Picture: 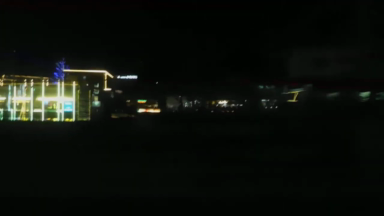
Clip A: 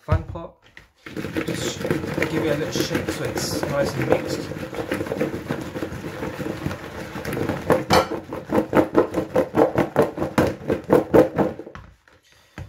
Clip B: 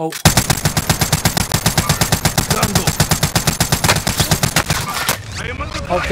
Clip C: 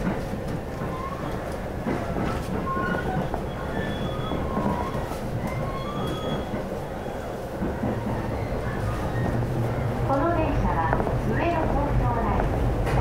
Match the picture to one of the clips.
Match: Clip C